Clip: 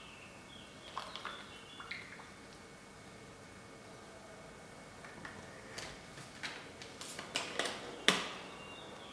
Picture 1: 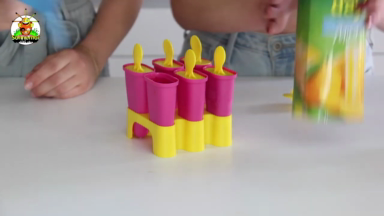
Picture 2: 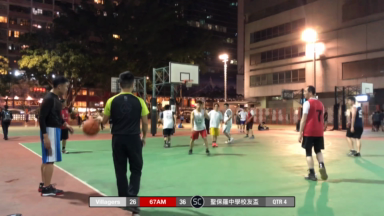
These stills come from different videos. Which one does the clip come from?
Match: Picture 1